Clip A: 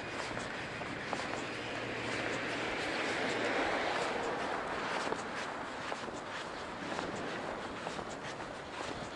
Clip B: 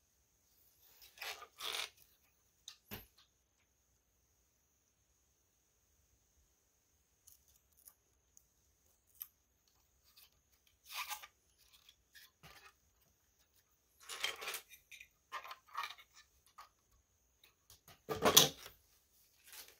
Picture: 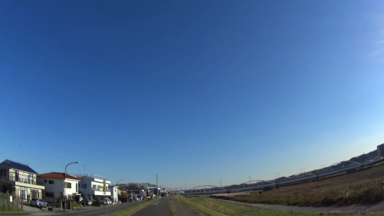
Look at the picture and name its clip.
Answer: A